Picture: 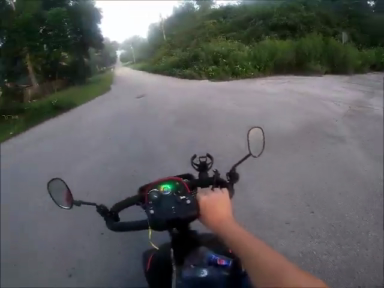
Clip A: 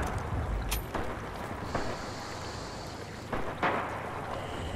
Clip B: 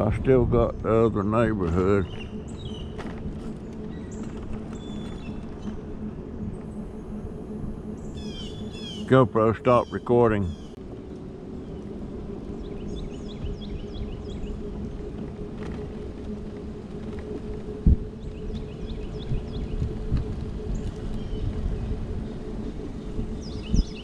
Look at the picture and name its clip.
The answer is B